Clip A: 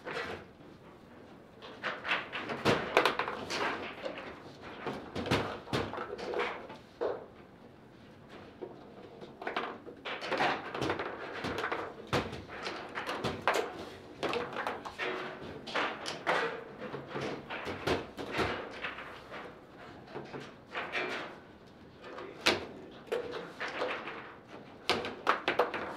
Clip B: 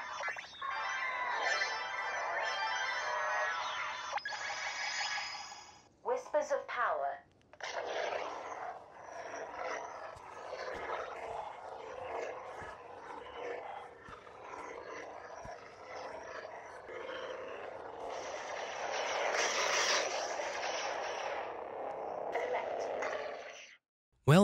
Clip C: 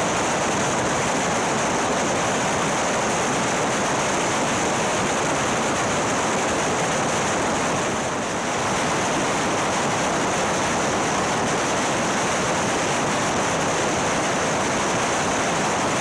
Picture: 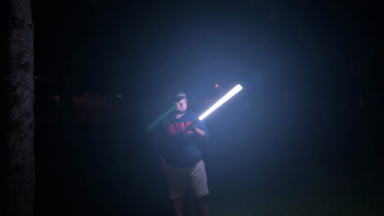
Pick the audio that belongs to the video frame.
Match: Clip B